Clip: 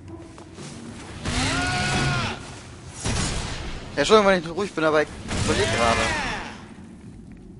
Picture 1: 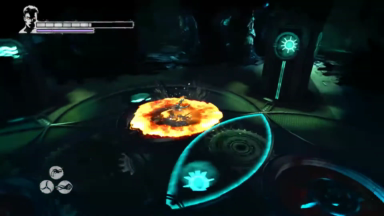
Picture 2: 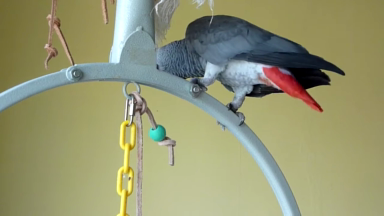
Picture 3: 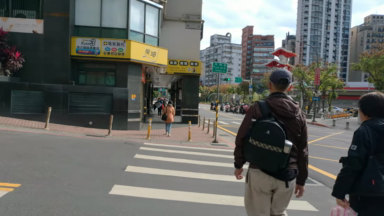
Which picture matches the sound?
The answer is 1